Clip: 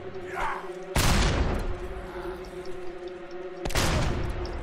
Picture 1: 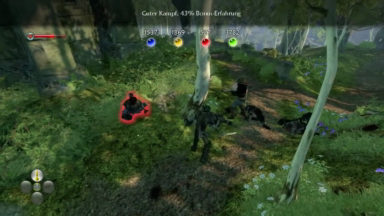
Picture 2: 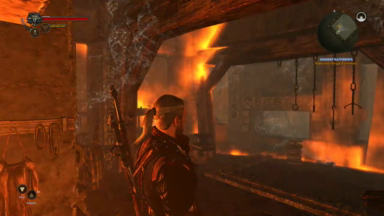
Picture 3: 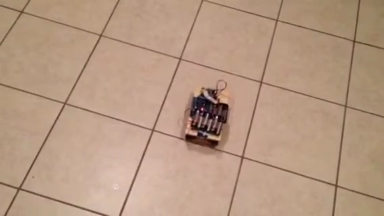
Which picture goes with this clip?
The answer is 1